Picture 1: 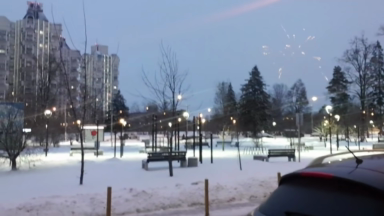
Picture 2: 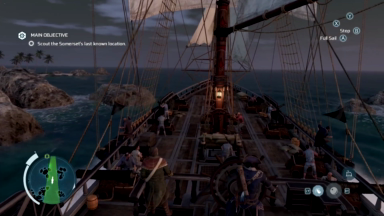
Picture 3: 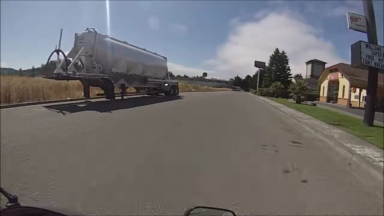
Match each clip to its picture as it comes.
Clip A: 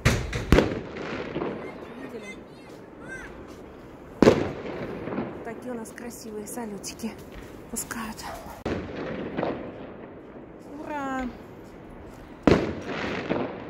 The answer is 1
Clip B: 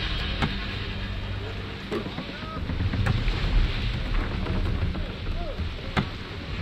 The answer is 2